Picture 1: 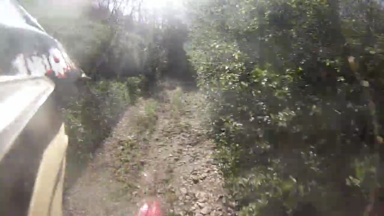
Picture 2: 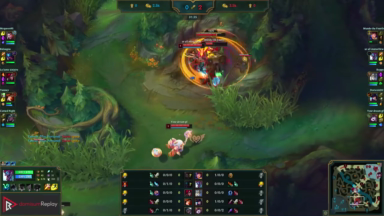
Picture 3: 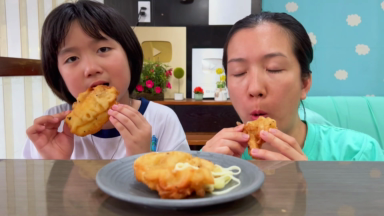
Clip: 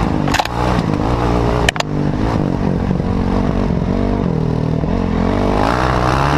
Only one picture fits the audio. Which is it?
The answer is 1